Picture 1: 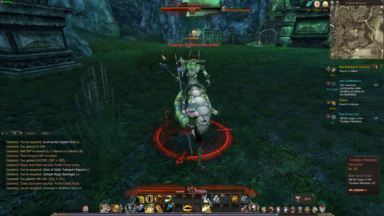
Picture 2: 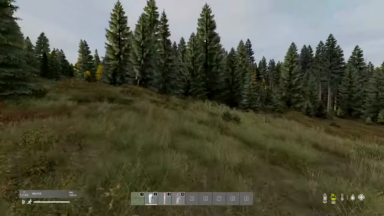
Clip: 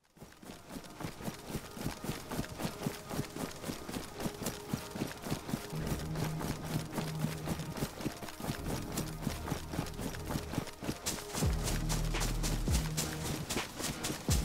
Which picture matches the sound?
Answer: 2